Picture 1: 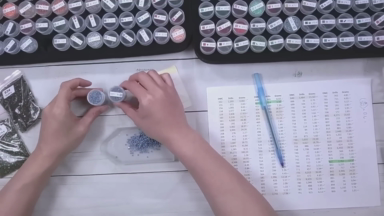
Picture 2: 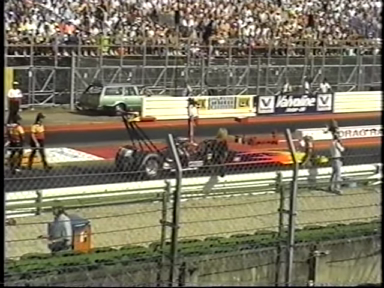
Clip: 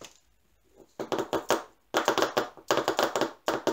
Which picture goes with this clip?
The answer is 1